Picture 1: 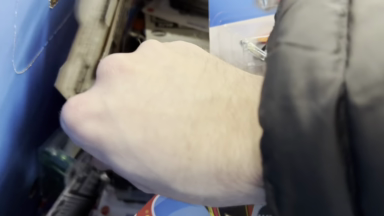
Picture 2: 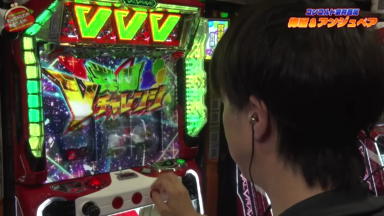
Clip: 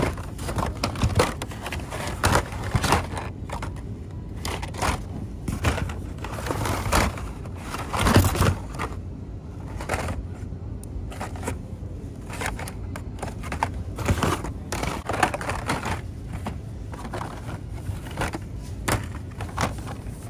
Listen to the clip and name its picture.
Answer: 1